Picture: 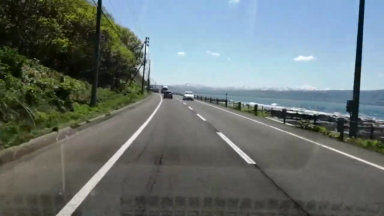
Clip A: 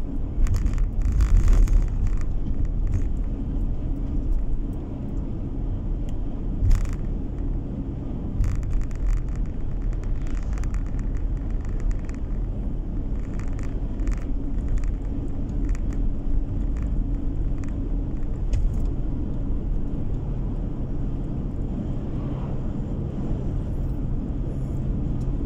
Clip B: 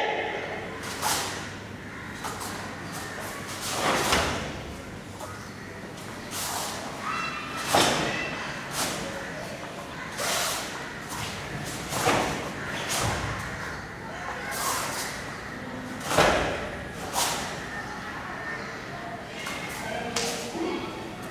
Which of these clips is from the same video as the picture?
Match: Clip A